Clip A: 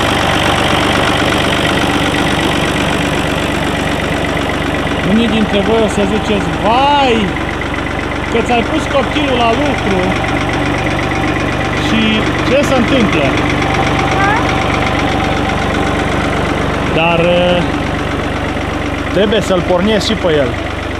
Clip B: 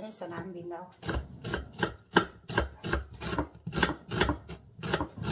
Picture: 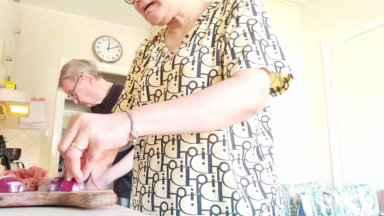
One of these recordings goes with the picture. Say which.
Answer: B